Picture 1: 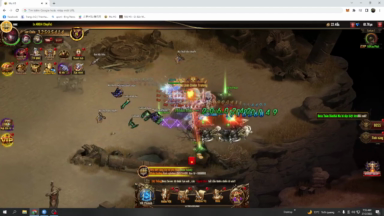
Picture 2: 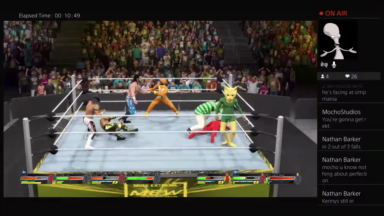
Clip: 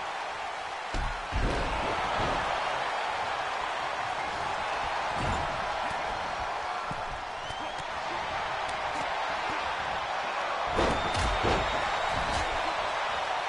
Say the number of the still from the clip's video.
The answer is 2